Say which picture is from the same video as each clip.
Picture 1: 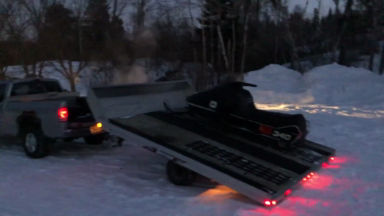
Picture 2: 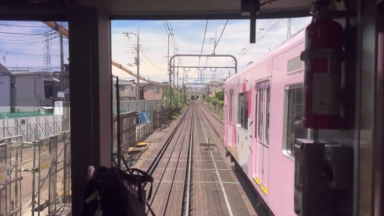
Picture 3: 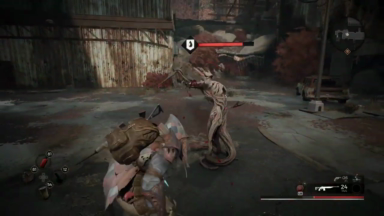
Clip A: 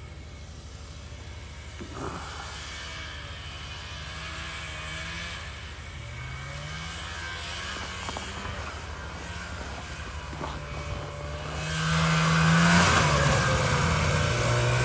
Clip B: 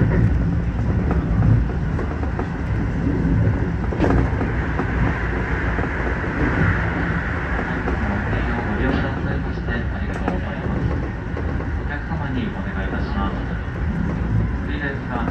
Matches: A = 1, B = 2